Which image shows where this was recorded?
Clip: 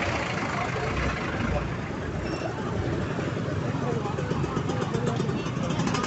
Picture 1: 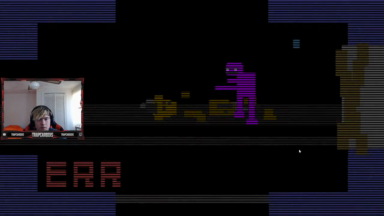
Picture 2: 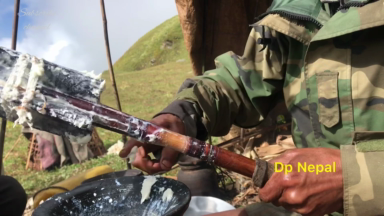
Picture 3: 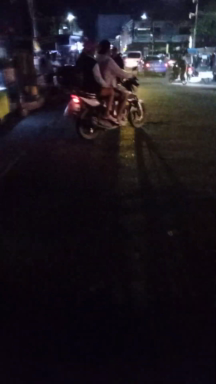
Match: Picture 3